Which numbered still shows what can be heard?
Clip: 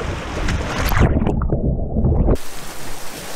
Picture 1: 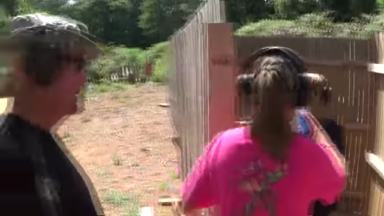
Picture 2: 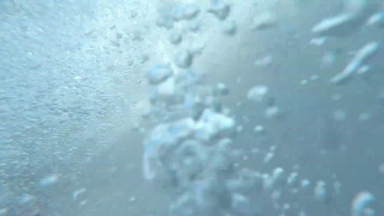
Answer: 2